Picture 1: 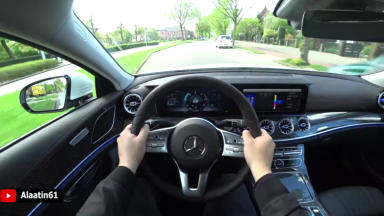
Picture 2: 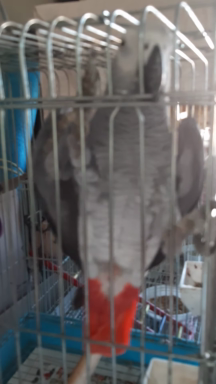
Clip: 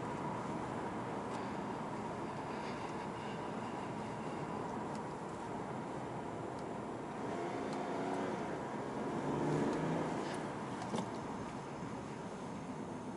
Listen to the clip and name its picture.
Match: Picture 1